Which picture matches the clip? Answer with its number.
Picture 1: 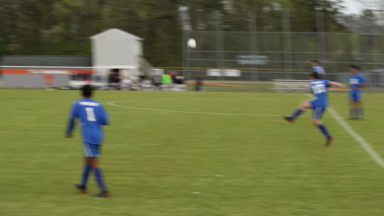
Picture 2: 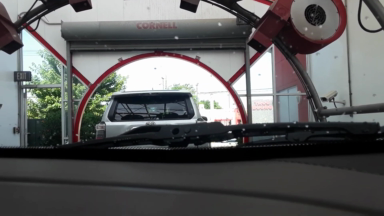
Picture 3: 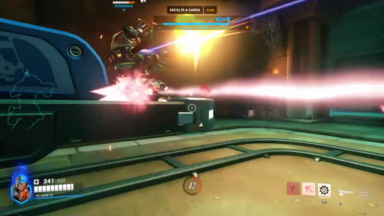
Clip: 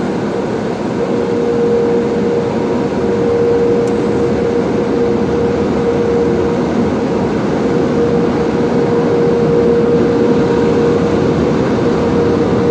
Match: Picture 2